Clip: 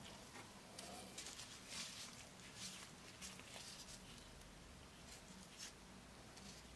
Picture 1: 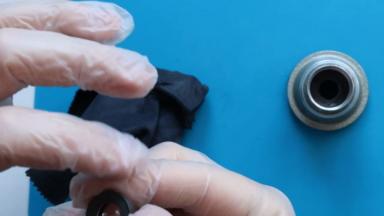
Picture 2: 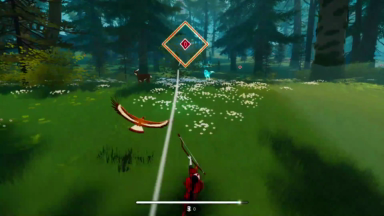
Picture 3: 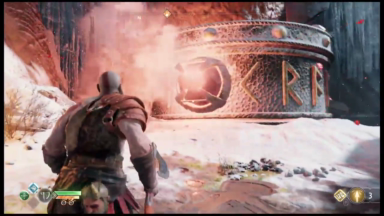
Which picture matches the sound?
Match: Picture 1